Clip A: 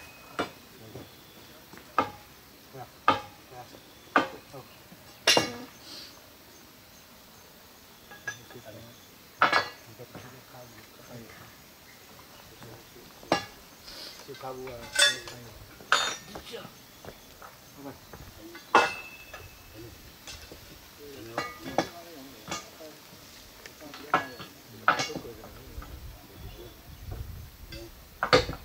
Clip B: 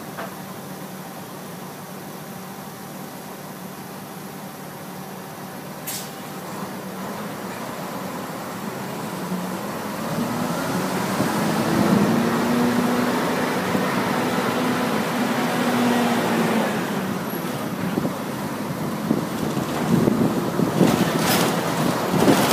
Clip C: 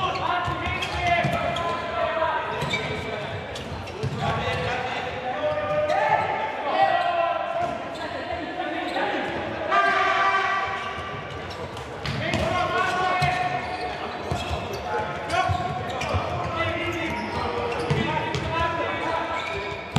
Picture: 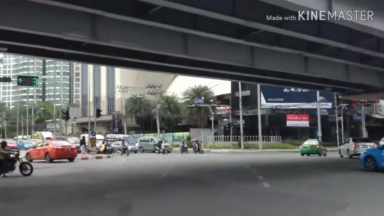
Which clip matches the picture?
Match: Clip B